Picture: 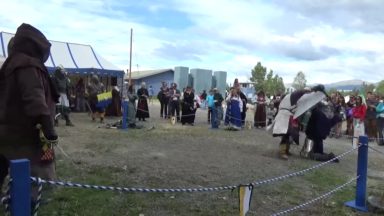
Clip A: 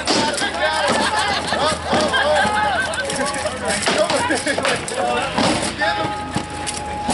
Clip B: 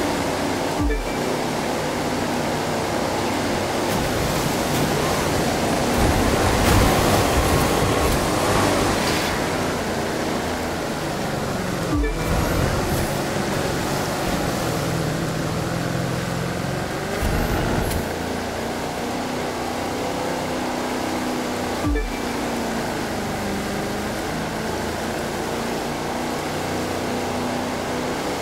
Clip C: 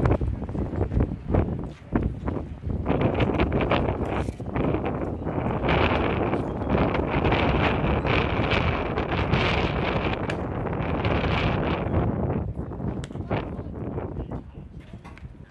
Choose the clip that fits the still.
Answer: A